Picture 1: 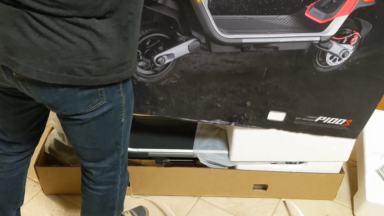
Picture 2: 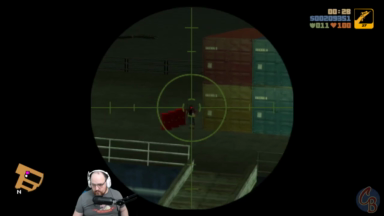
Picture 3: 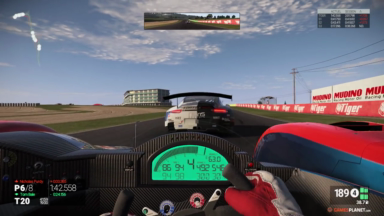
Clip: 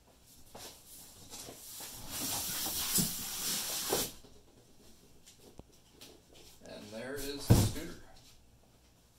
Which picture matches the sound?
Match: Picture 1